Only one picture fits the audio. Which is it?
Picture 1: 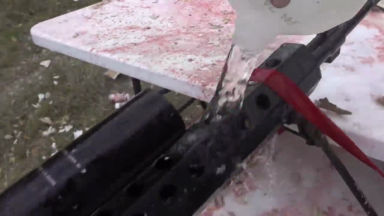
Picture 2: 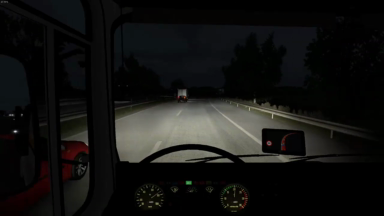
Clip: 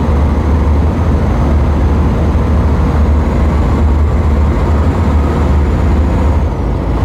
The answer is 2